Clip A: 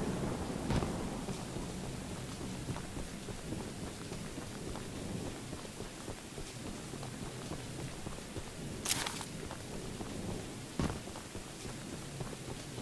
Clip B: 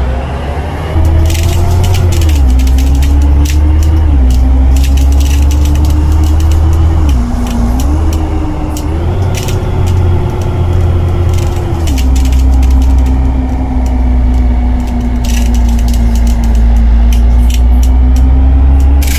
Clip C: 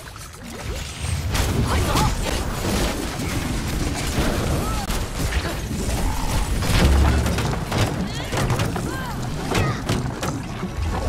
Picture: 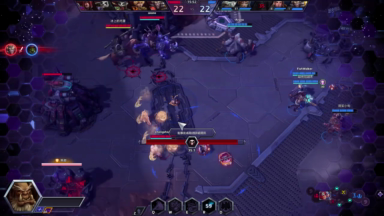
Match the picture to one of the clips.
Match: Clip C